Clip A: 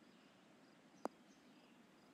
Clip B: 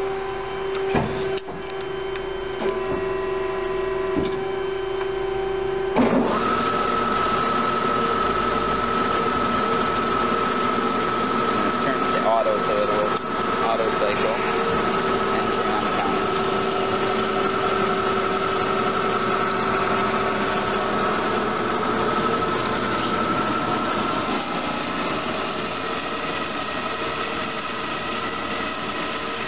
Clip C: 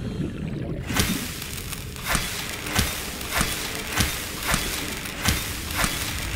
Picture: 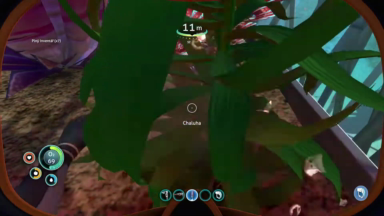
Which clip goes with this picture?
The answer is C